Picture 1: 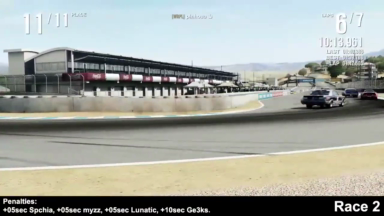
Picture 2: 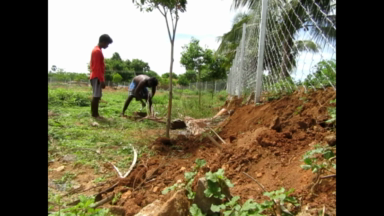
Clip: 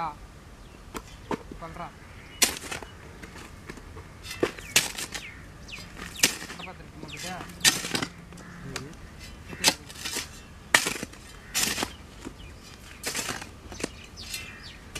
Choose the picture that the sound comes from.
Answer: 2